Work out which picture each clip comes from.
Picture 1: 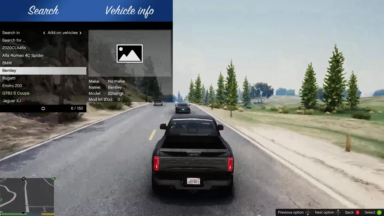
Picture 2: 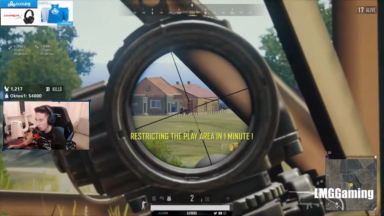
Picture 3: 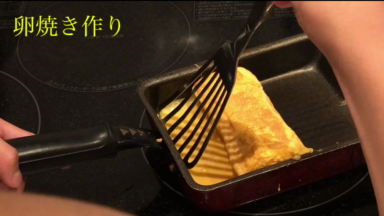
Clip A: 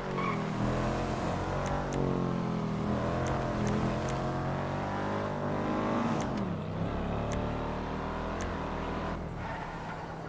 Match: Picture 1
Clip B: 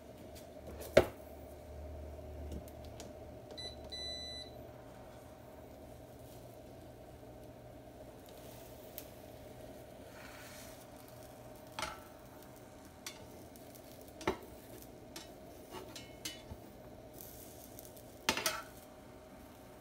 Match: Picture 3